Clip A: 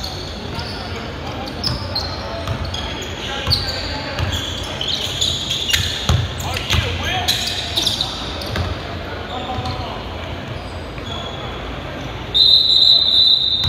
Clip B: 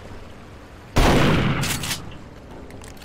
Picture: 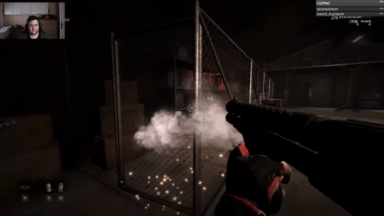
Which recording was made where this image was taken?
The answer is B